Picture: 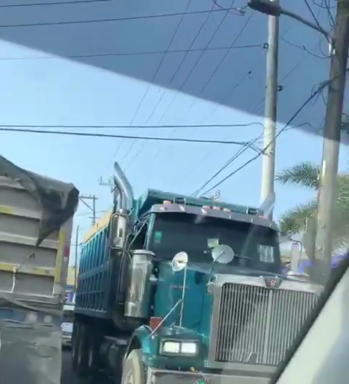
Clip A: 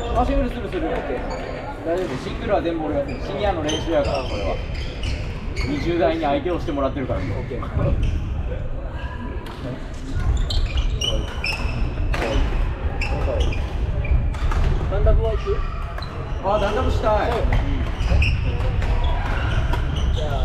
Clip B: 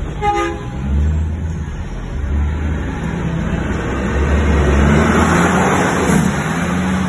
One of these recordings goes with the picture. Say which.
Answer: B